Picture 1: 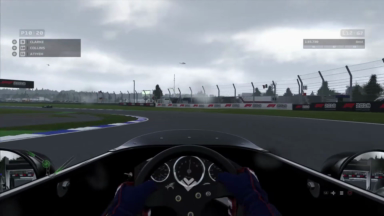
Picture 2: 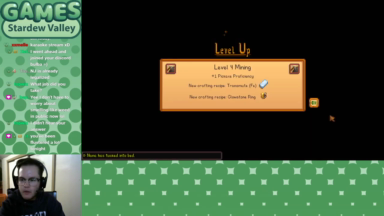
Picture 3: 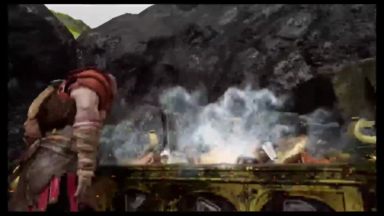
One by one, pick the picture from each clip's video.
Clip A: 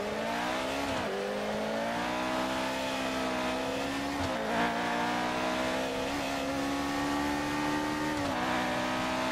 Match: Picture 1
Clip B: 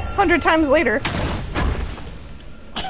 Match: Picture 3